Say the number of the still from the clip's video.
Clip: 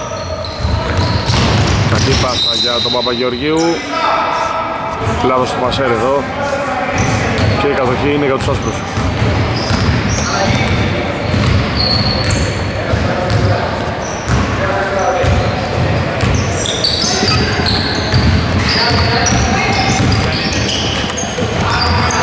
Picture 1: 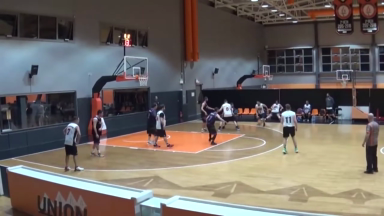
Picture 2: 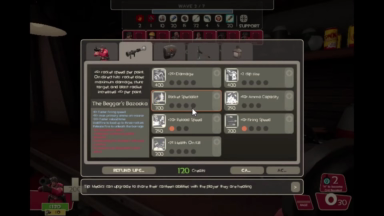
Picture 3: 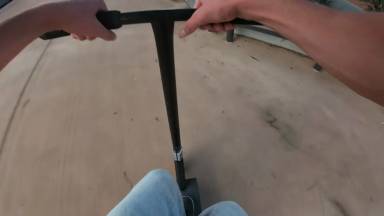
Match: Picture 1